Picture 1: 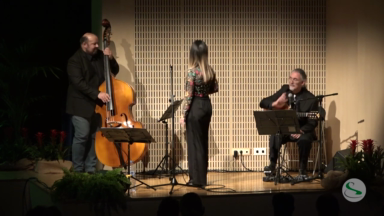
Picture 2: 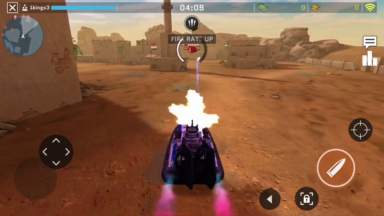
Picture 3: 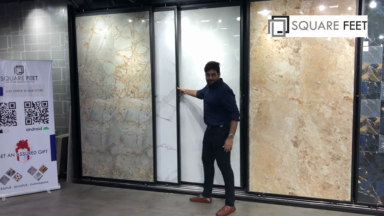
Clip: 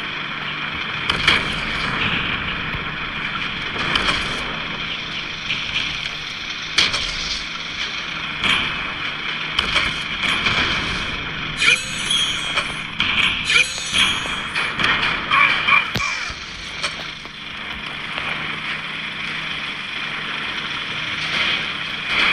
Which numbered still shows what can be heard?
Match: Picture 2